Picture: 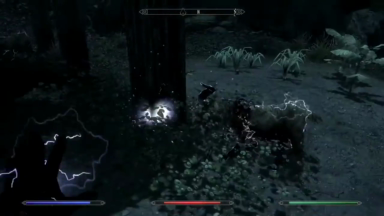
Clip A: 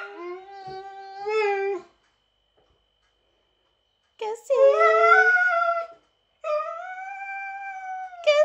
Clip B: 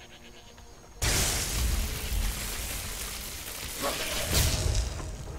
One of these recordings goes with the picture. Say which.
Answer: B